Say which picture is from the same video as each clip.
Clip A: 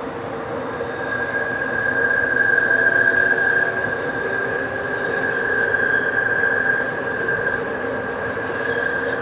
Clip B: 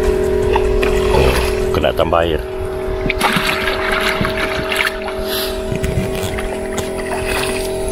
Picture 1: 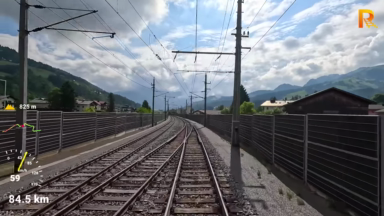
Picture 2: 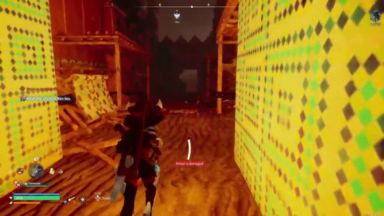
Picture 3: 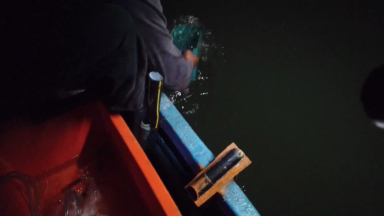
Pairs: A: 1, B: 3